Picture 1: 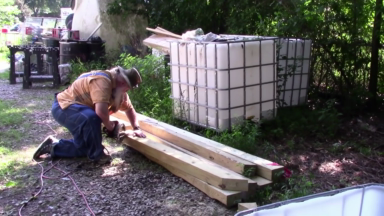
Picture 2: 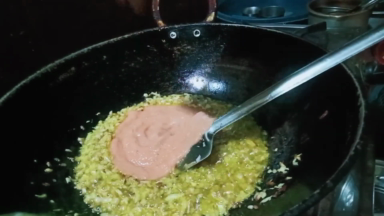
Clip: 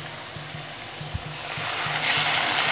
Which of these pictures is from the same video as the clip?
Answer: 2